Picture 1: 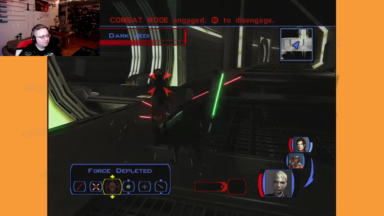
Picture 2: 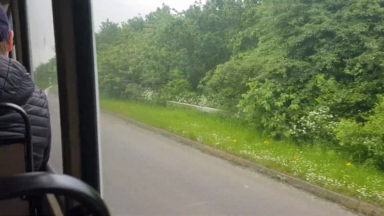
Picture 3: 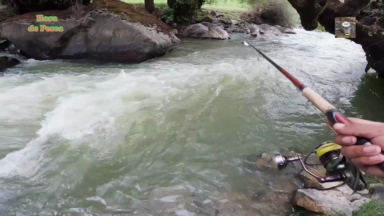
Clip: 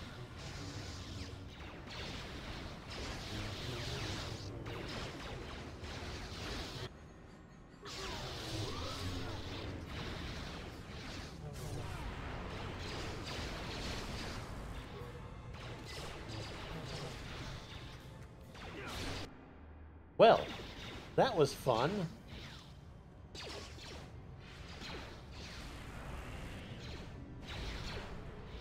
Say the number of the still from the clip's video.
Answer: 1